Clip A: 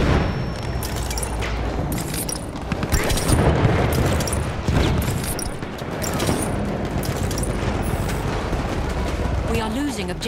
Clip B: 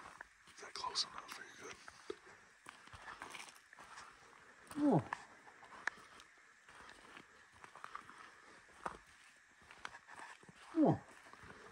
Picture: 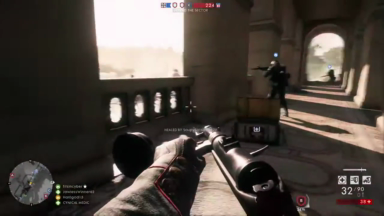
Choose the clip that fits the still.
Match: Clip A